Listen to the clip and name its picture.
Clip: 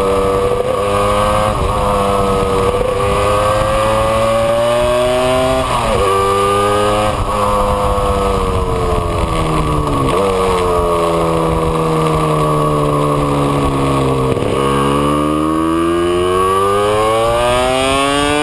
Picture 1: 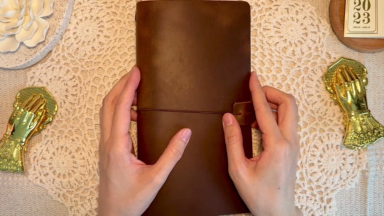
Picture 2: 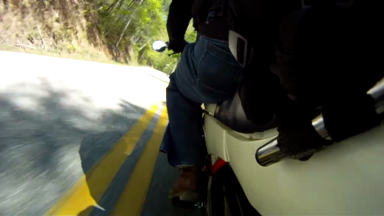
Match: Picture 2